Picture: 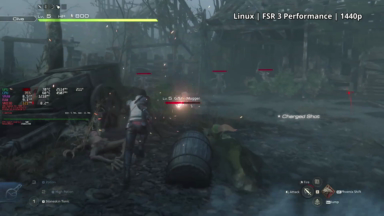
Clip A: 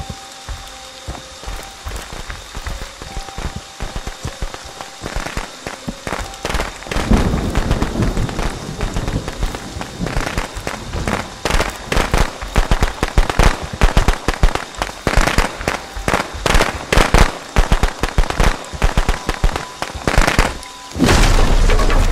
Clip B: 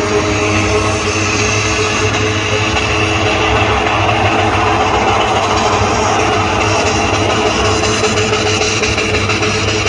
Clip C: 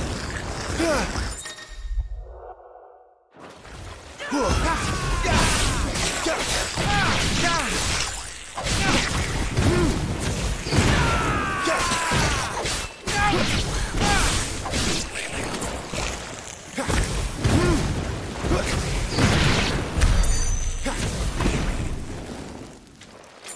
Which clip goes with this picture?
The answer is C